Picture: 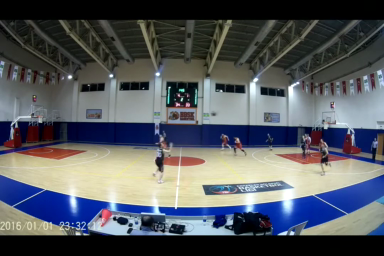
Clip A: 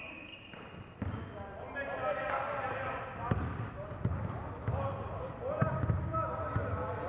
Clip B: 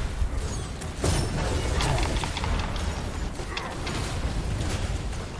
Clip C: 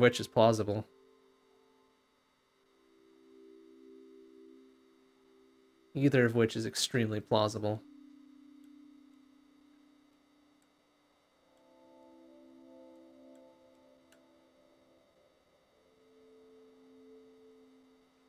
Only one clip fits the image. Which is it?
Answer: A